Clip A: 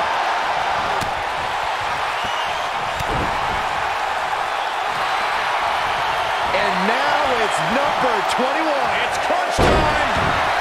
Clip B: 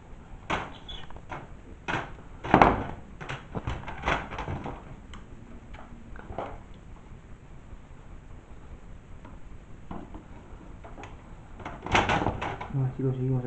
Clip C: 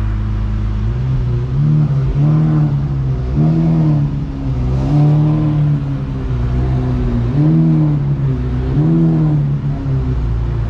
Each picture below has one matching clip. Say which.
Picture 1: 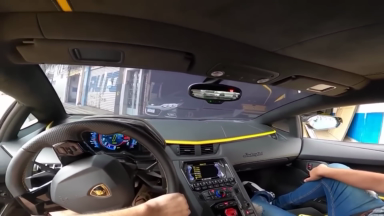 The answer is C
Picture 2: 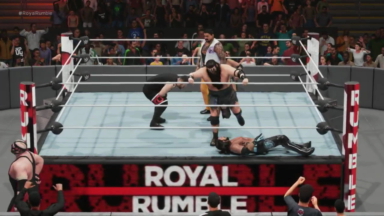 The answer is A